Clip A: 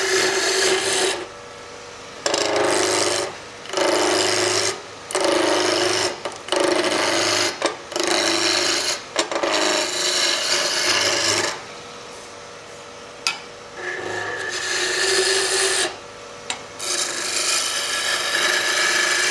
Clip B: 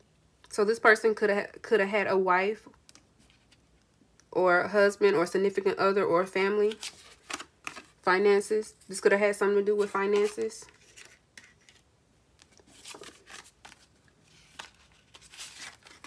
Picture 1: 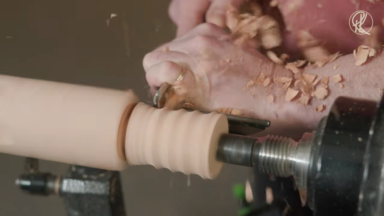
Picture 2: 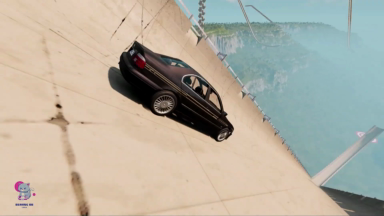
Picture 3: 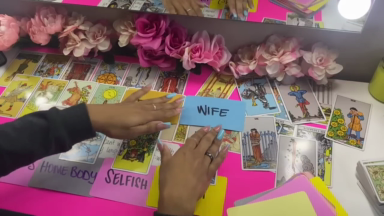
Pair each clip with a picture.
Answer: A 1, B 3